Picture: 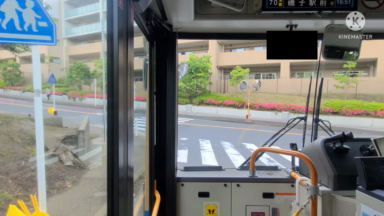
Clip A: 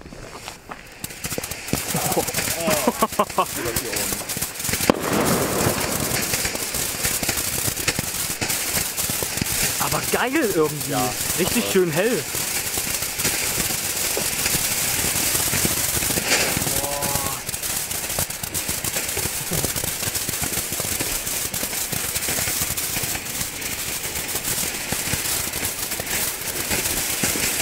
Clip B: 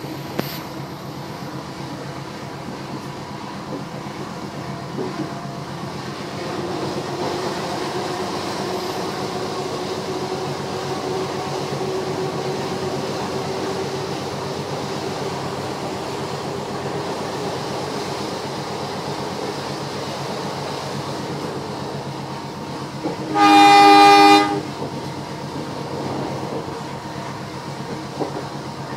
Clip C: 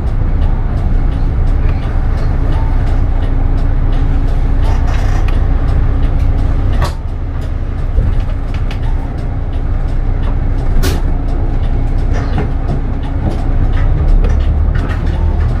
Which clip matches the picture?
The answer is C